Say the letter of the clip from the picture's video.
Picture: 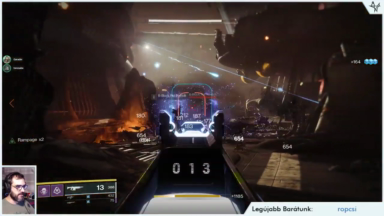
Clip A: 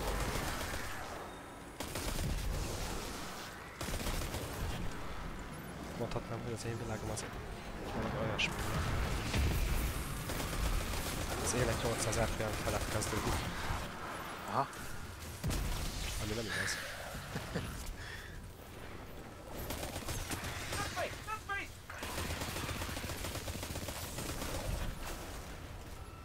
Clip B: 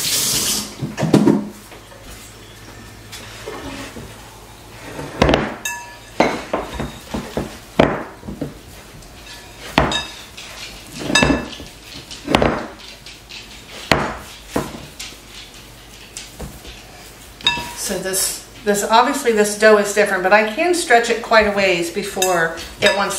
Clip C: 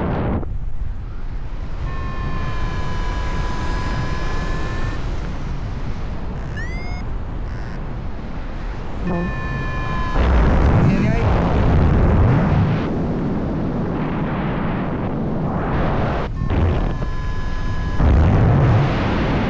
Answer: A